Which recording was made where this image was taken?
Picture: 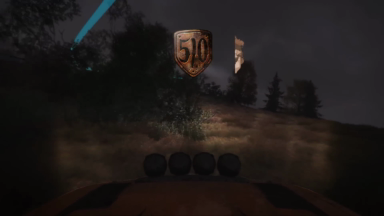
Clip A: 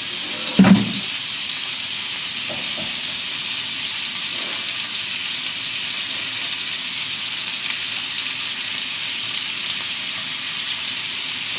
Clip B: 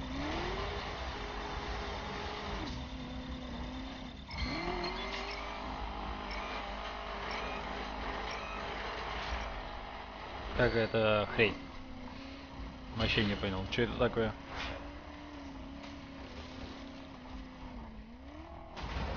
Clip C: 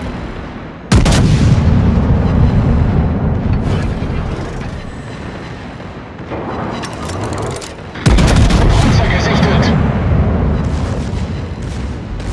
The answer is B